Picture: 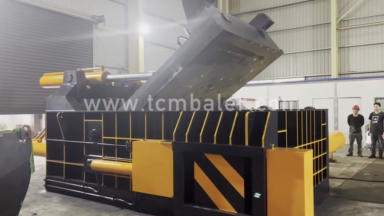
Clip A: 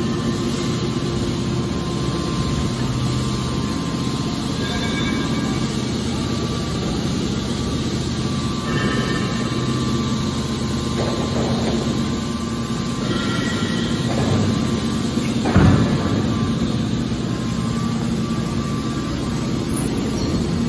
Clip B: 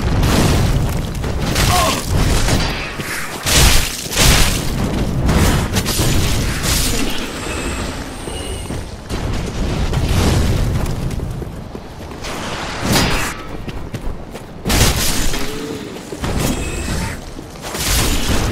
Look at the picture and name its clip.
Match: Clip A